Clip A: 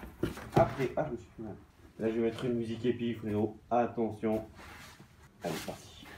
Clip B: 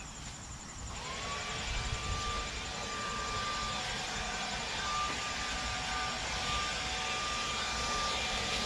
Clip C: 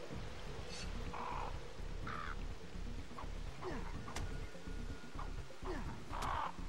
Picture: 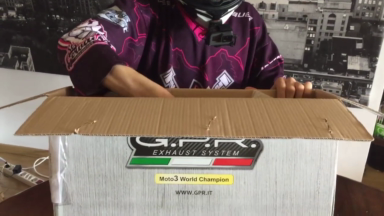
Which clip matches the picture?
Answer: A